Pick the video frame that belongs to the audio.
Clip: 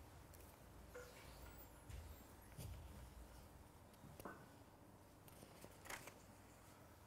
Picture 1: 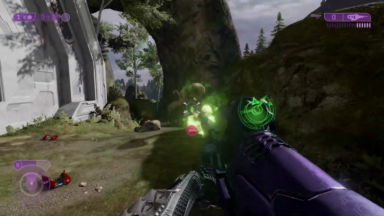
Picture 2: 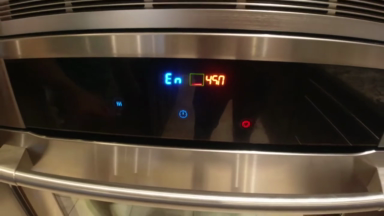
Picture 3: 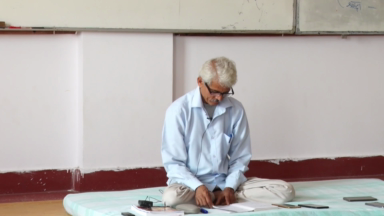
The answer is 3